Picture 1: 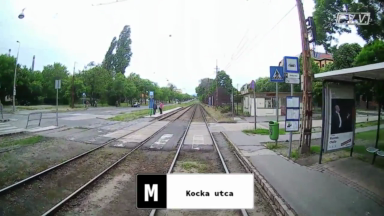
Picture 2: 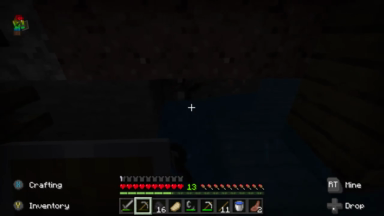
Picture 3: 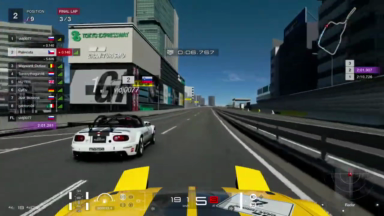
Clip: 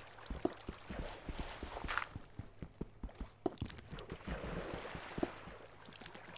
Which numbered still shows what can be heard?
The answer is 2